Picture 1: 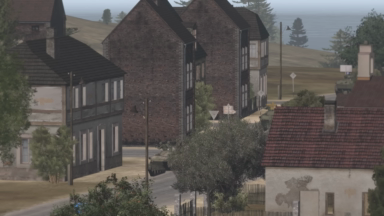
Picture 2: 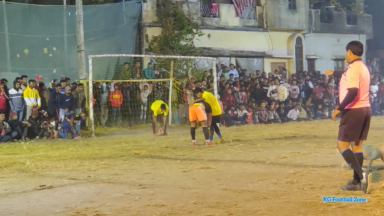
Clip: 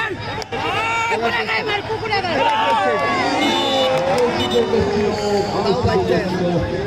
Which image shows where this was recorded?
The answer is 2